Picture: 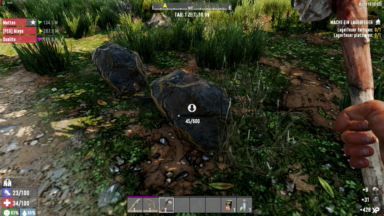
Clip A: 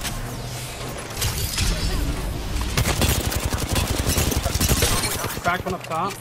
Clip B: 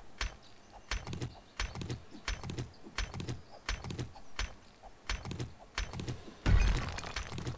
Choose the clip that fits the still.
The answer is B